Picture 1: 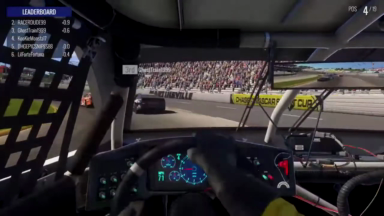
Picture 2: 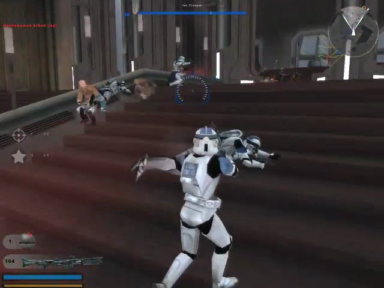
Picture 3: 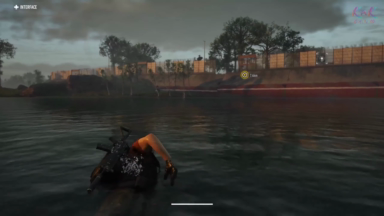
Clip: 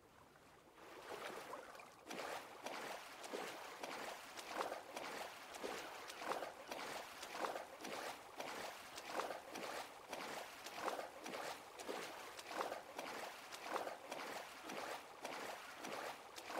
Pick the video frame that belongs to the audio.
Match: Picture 3